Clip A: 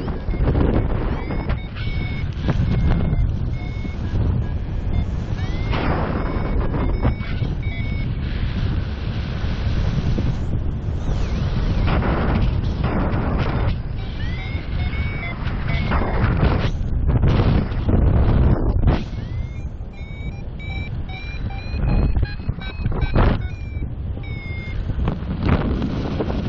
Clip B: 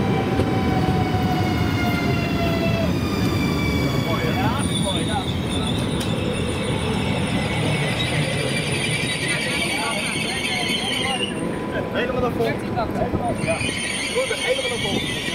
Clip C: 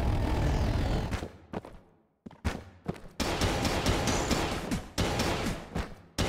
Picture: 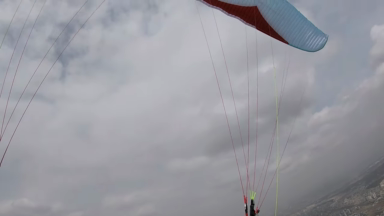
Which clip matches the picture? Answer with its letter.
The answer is A